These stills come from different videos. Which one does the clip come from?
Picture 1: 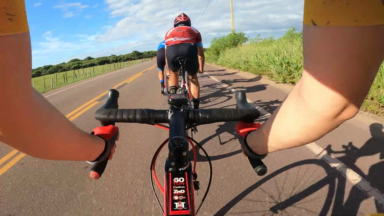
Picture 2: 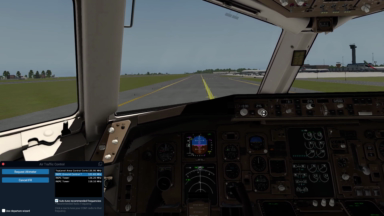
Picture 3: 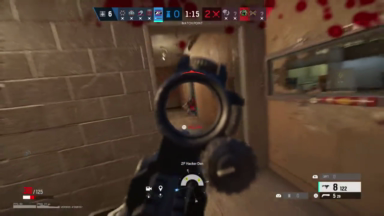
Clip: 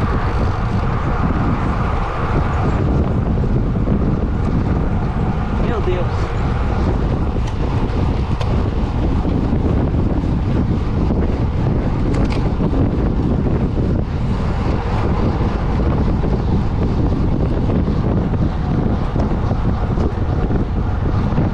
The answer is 1